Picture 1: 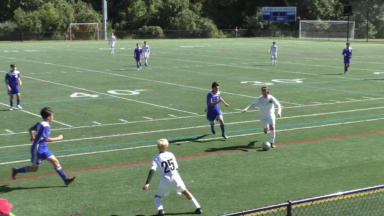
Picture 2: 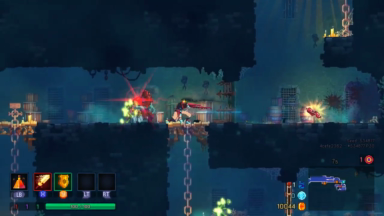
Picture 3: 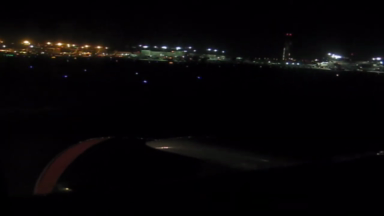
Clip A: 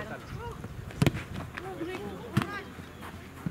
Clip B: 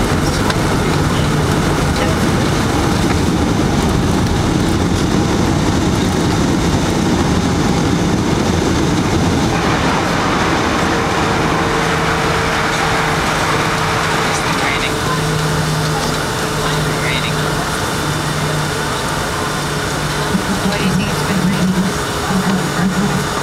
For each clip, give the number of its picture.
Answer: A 1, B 3